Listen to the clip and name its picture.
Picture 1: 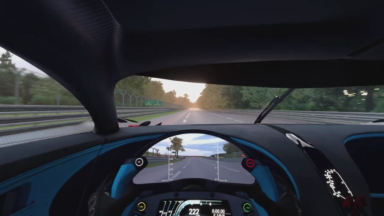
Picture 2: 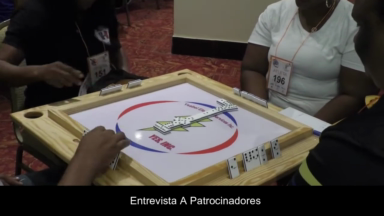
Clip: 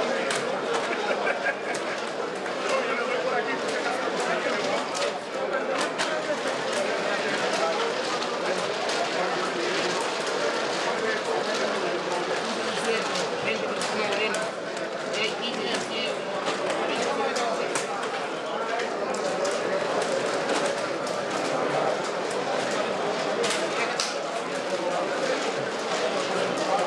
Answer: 2